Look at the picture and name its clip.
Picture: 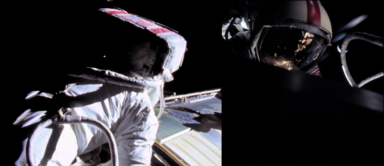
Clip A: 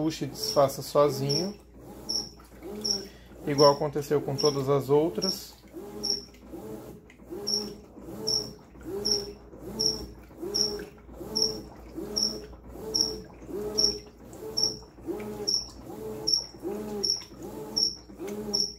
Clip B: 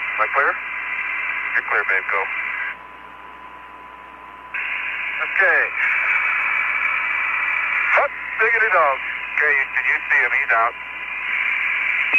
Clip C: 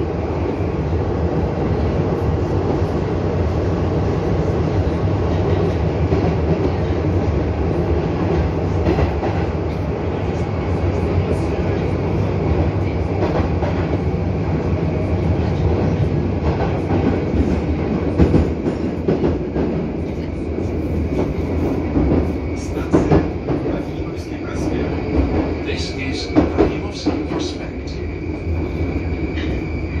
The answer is B